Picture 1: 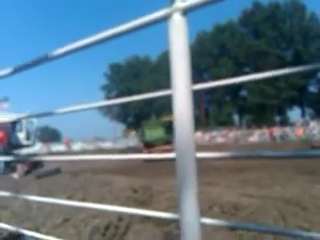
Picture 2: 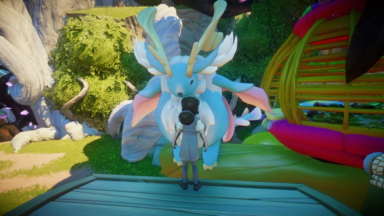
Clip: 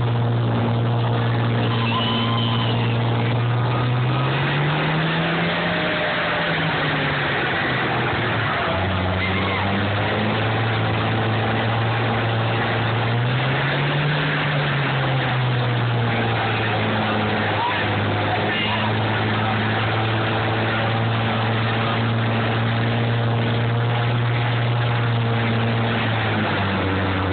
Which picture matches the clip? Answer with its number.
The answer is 1